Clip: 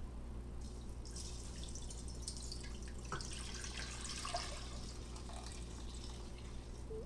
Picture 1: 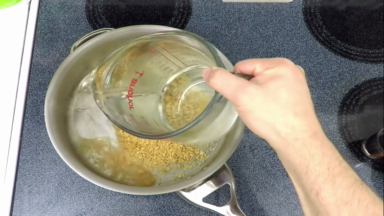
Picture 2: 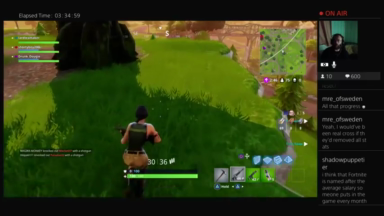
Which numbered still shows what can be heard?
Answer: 1